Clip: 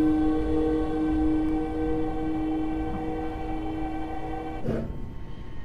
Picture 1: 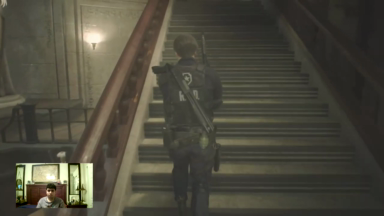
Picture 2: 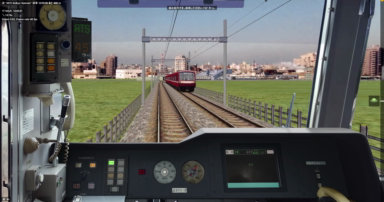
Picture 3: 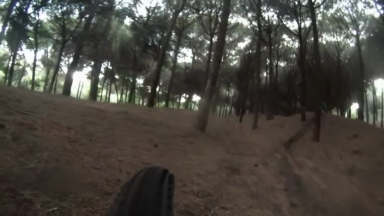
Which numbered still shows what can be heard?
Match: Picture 2